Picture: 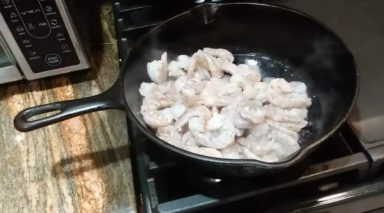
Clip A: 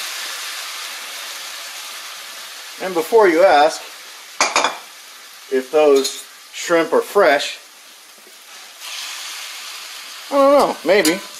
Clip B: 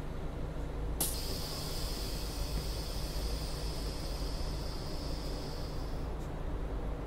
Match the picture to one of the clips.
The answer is A